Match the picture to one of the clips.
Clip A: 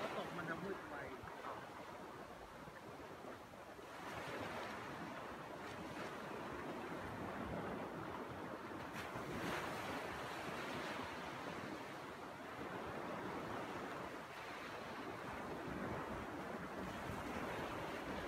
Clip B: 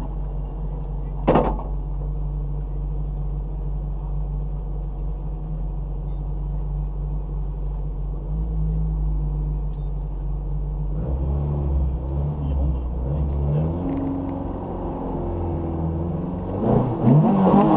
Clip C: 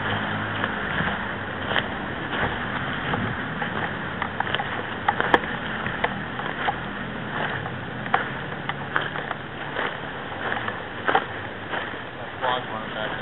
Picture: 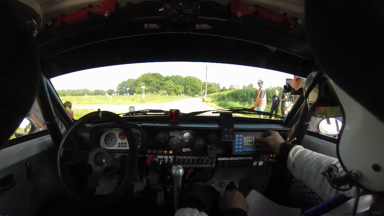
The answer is B